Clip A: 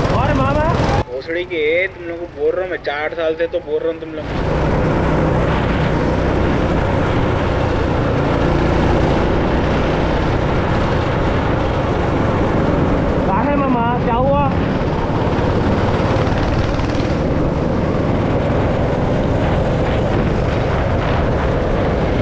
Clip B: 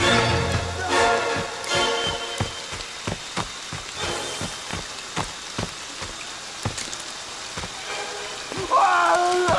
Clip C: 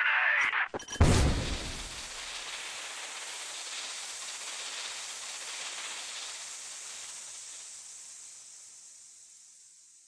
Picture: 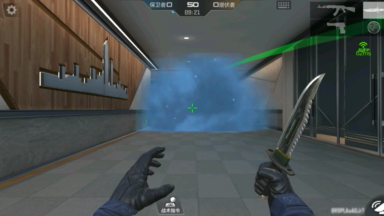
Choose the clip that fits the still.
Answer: C